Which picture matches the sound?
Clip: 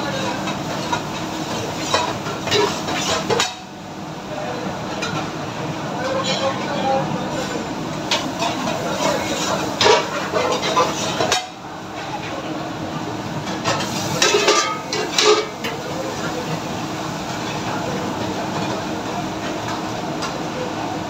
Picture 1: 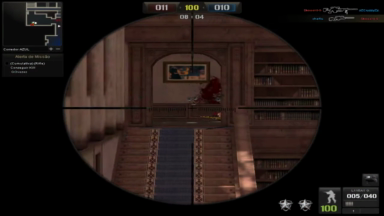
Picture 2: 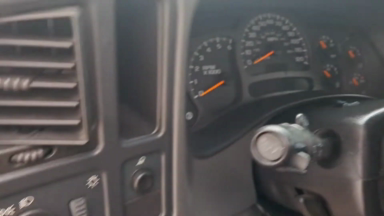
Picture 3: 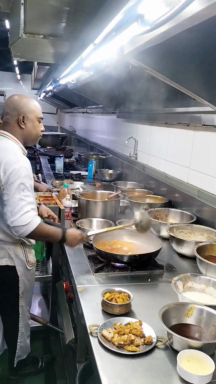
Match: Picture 3